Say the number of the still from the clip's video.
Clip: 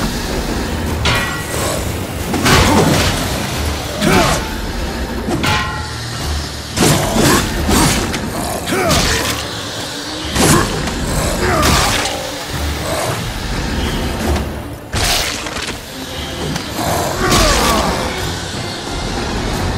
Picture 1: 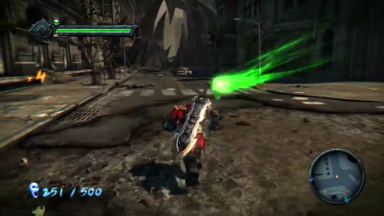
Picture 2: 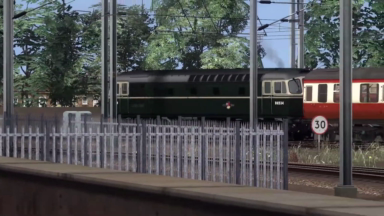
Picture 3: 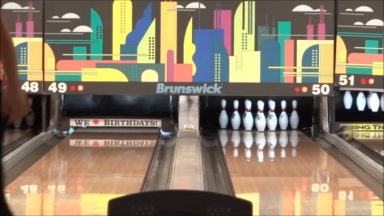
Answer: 1